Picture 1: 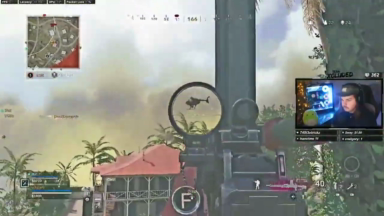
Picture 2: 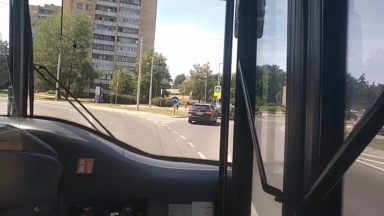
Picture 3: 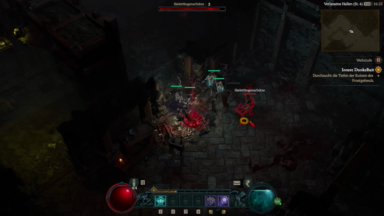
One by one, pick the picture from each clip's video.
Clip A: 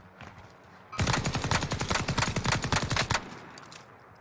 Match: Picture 1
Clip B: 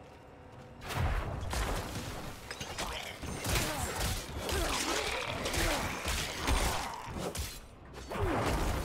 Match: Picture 3